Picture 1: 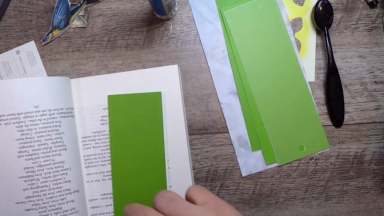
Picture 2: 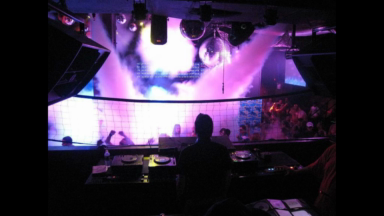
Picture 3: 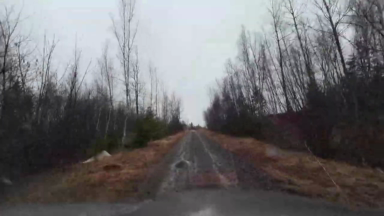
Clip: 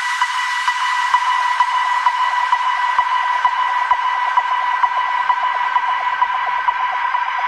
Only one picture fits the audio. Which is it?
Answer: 2